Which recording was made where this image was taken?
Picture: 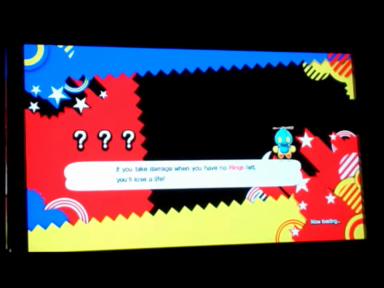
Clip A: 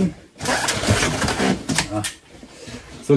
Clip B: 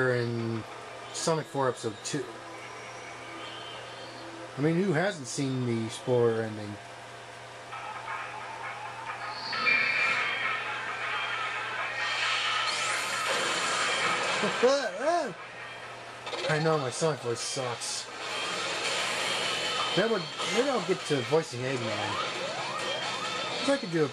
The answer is B